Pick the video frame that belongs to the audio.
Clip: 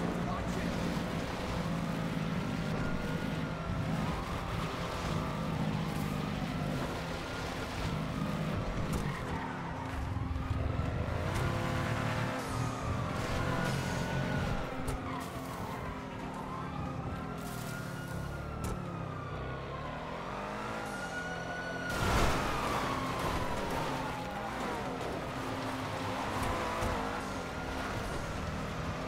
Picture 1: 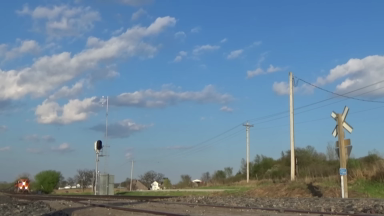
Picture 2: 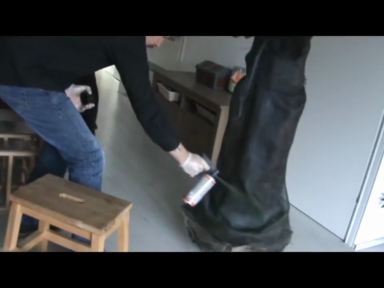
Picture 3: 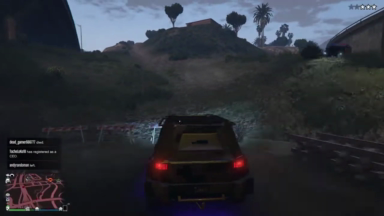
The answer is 3